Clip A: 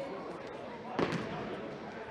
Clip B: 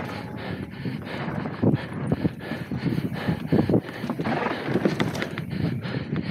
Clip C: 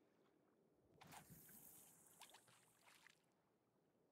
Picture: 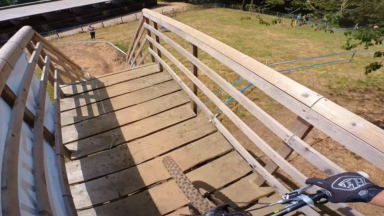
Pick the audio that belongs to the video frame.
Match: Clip B